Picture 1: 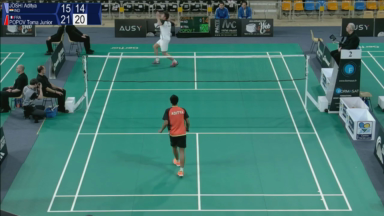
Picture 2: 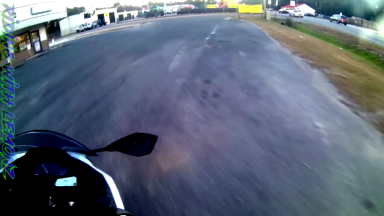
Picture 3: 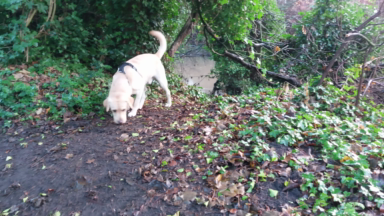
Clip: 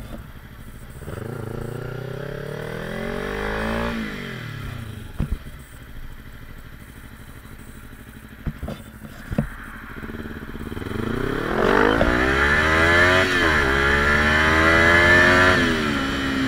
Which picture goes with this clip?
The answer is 2